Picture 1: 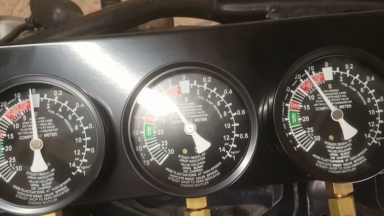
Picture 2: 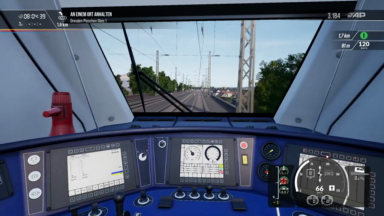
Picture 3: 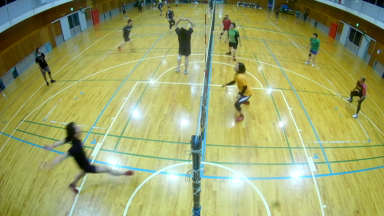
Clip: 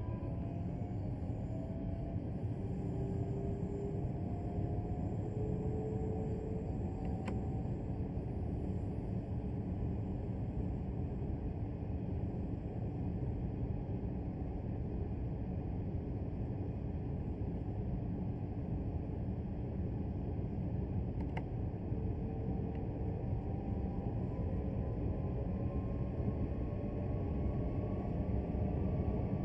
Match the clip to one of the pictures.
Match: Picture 2